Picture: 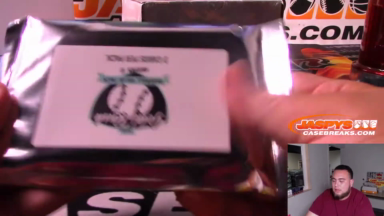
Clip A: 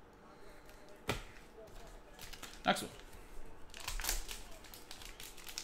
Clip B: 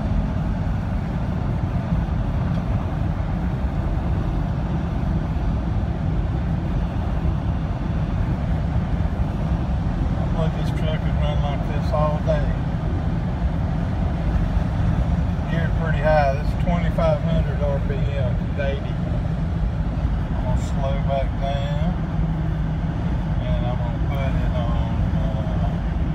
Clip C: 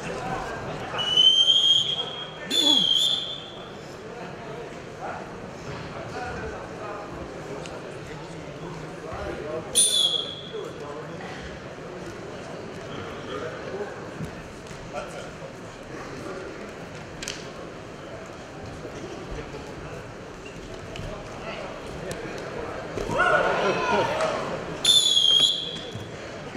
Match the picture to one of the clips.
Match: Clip A